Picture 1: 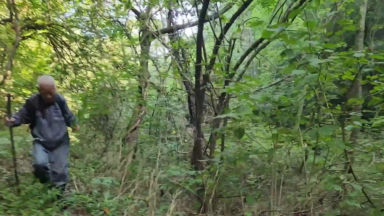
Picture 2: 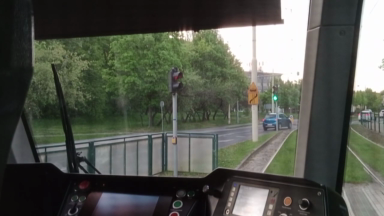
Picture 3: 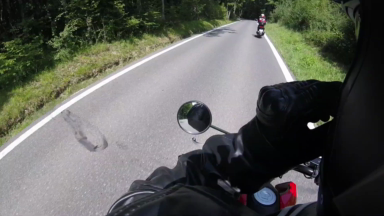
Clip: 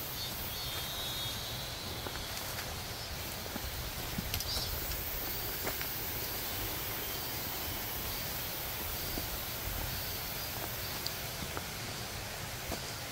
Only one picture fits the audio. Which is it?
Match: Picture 1